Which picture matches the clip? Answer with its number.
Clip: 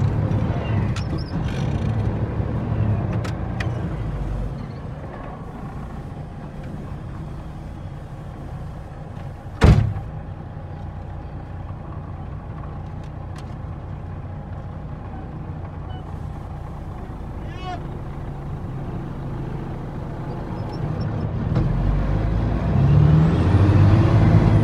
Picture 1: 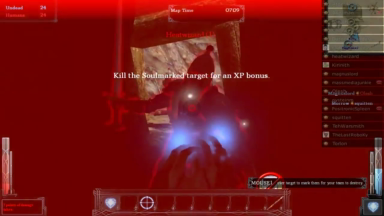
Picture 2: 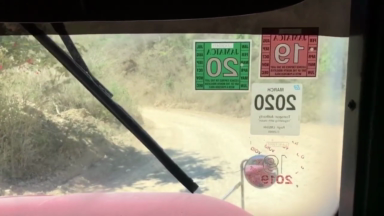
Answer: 2